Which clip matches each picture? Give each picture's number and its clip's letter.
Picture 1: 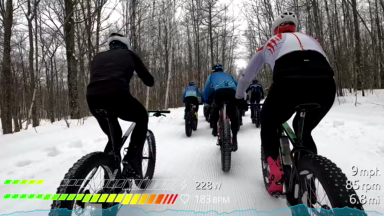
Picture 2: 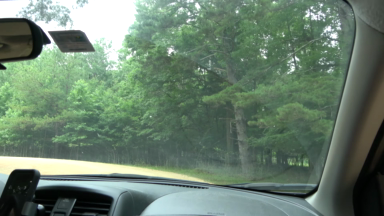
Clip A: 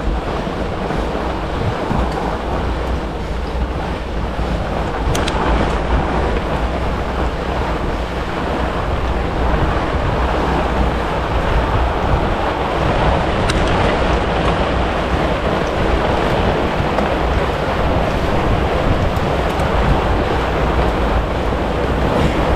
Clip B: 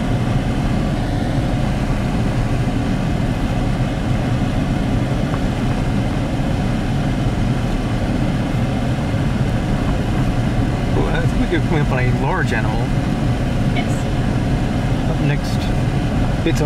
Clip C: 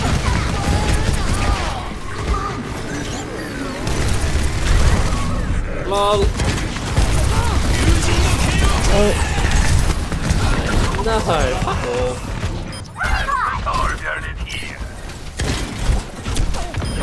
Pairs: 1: A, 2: B